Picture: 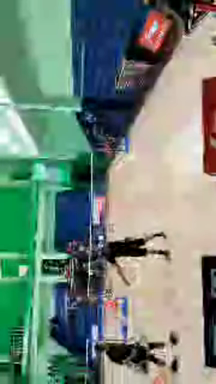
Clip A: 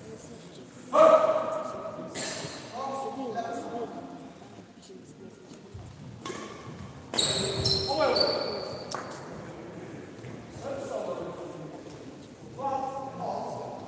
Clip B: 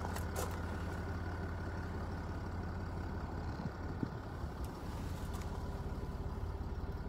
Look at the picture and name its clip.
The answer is A